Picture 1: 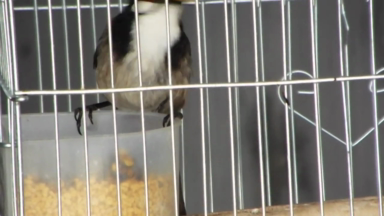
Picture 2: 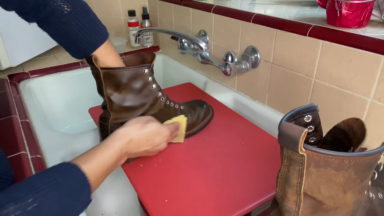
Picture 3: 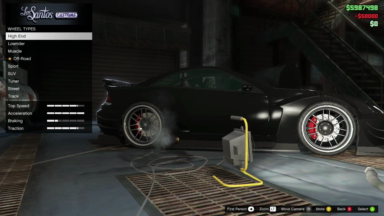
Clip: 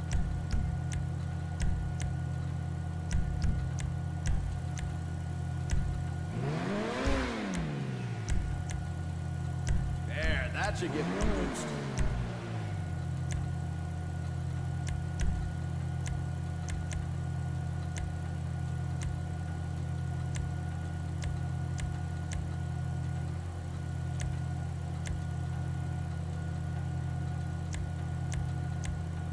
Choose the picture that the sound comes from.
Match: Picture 3